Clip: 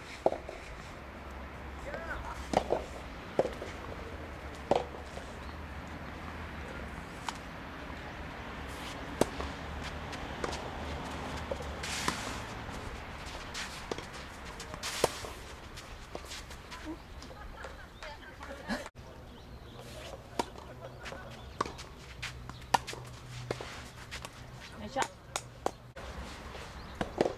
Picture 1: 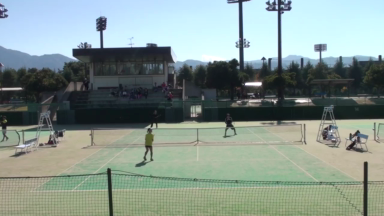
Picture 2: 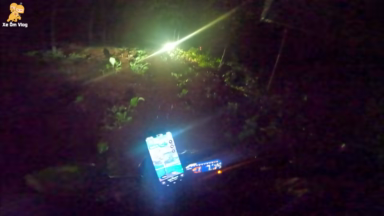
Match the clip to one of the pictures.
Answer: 1